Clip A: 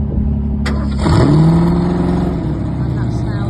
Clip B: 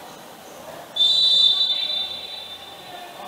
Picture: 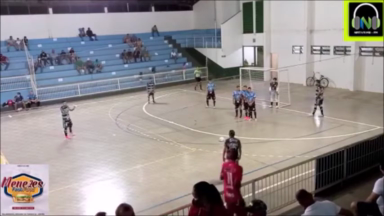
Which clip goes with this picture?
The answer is B